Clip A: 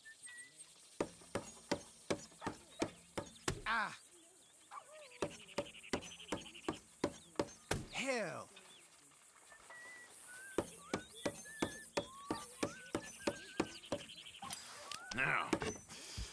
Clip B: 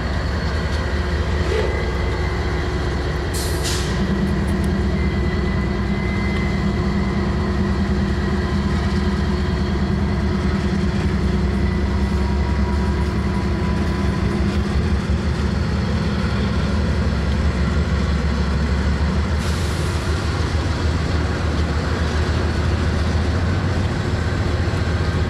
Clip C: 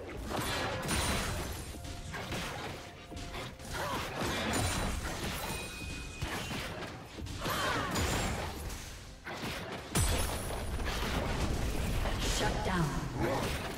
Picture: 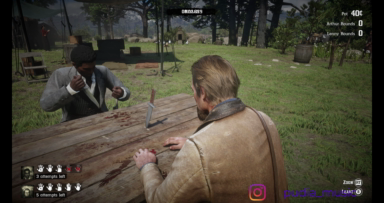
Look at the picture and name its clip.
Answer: A